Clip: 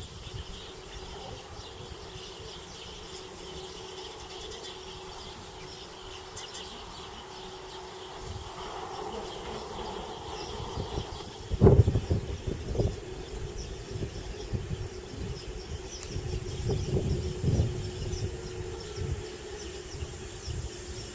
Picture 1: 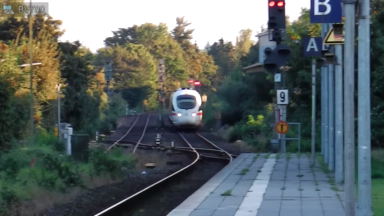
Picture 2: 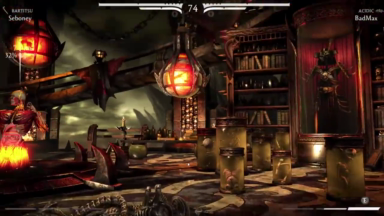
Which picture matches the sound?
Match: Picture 1